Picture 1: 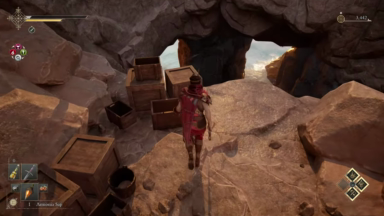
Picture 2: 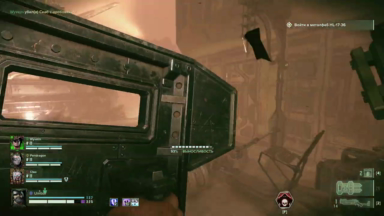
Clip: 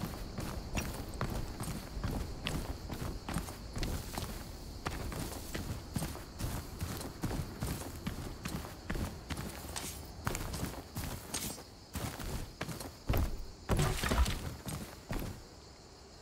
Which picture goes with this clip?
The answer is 1